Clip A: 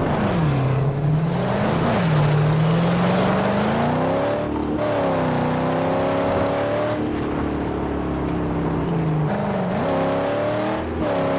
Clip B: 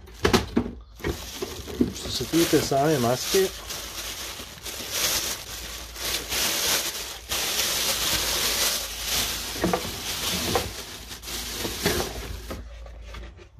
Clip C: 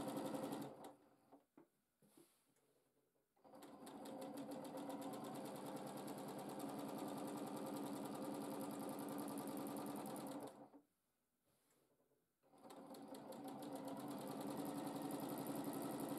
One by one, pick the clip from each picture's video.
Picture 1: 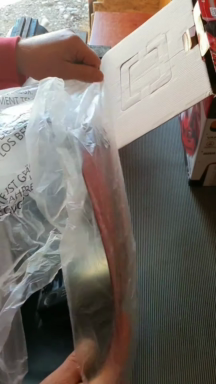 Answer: B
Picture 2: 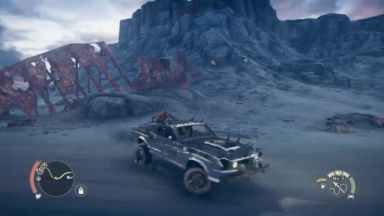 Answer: A